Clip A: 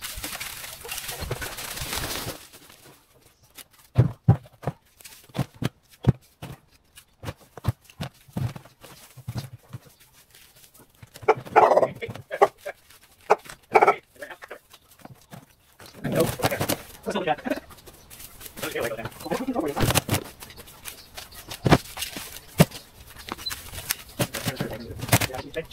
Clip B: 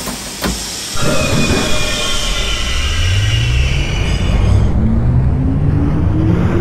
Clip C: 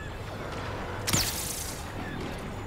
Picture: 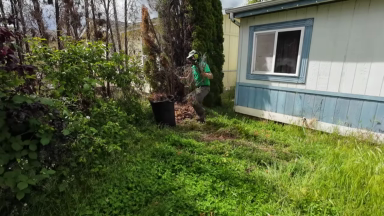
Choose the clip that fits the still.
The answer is A